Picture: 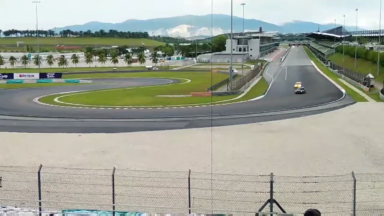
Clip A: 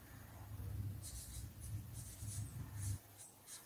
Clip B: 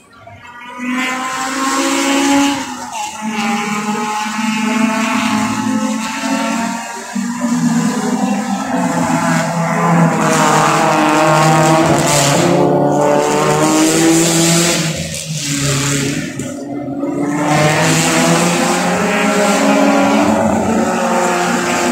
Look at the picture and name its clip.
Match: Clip B